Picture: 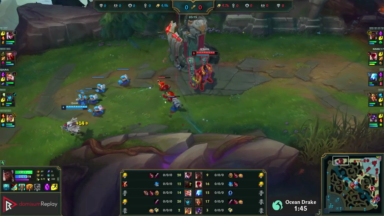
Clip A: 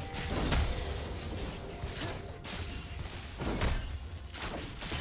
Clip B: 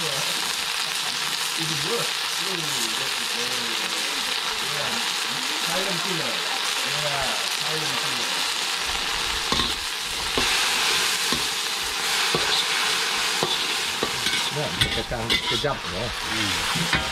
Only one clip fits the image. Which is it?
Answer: A